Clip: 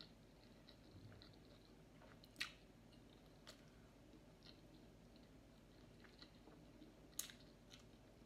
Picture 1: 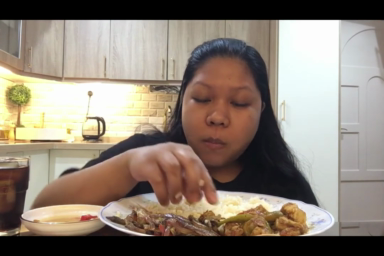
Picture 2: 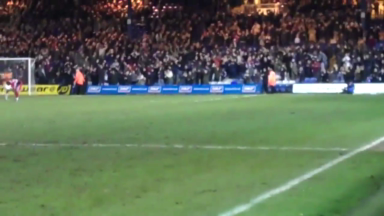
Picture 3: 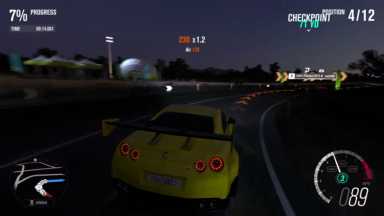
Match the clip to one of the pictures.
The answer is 1